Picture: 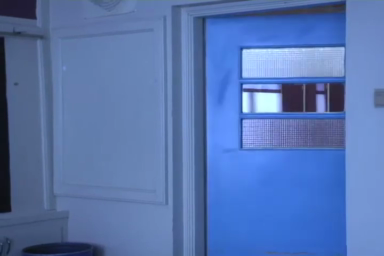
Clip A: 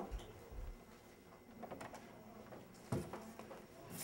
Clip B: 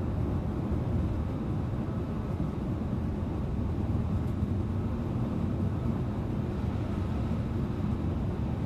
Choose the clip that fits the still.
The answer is A